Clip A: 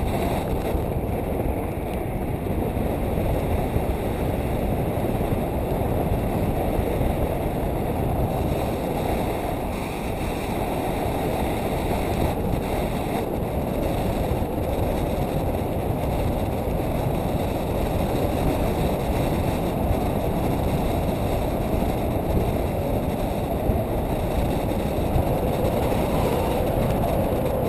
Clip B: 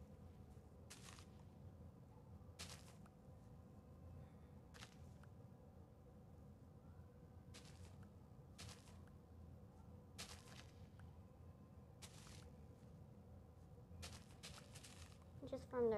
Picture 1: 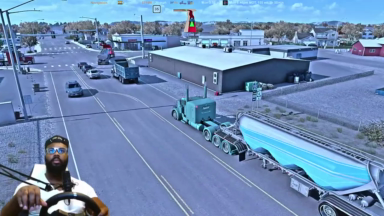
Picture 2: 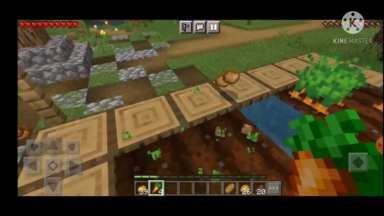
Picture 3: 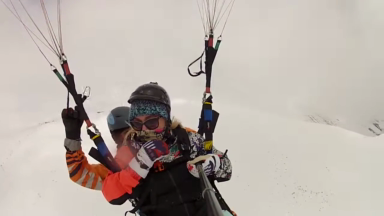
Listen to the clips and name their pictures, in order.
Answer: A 3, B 2